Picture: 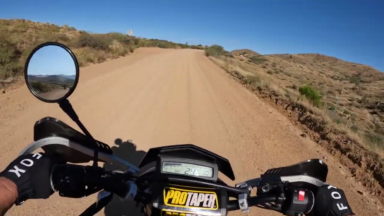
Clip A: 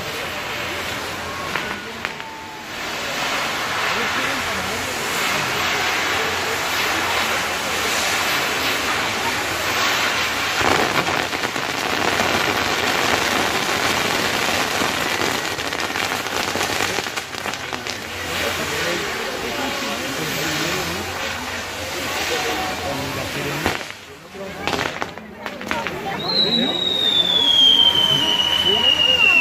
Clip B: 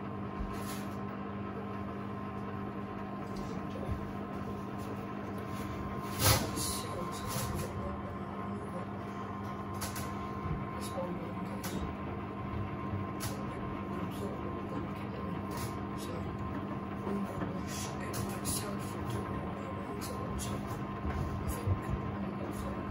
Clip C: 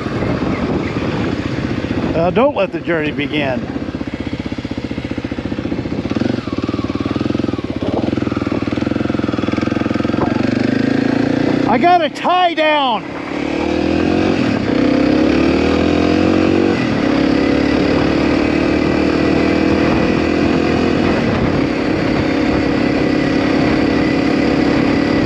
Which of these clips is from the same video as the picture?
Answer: C